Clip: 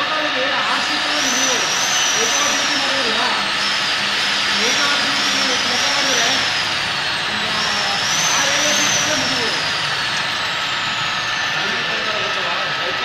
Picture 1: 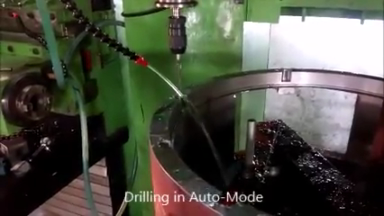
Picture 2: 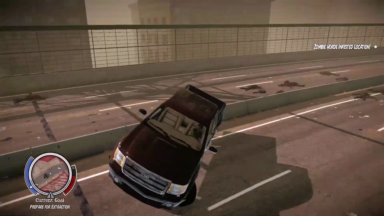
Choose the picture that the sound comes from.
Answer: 1